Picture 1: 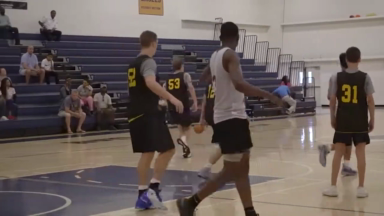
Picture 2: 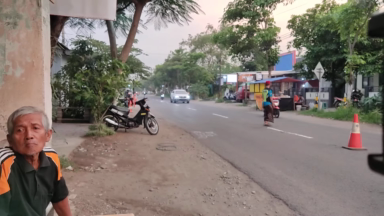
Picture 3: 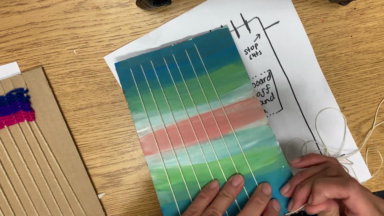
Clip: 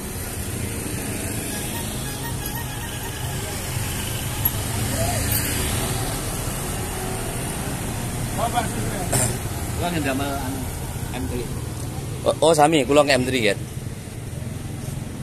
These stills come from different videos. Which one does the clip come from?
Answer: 2